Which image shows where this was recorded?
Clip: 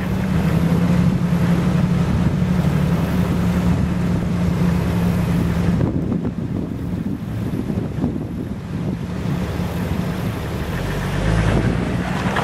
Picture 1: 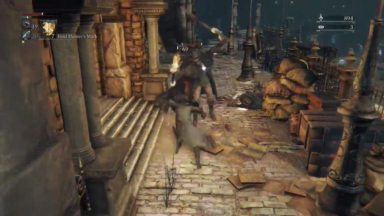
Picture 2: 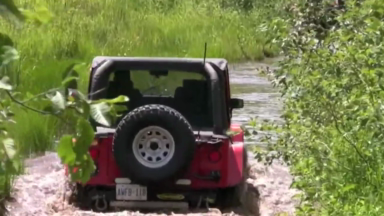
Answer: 2